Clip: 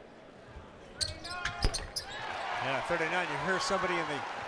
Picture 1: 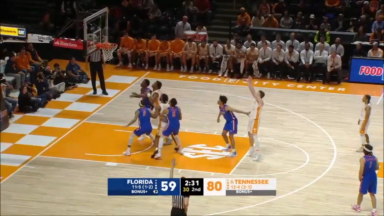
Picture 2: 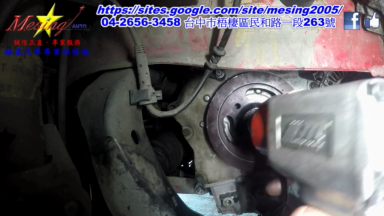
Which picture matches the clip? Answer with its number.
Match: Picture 1